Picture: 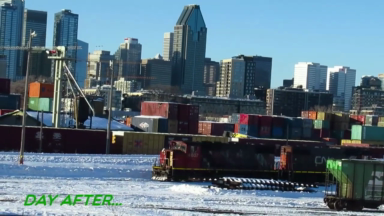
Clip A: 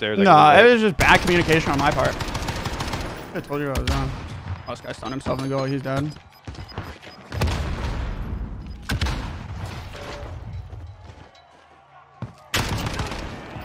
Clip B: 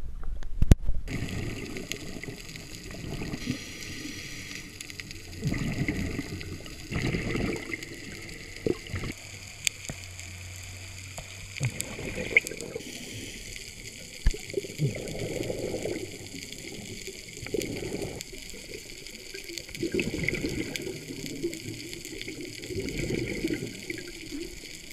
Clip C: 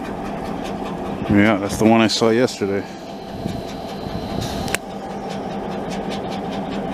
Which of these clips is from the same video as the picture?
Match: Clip C